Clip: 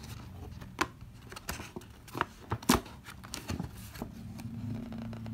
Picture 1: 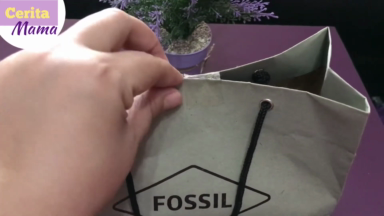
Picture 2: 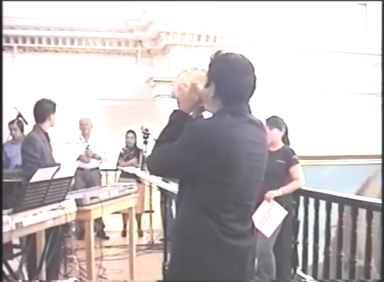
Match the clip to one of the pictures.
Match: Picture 1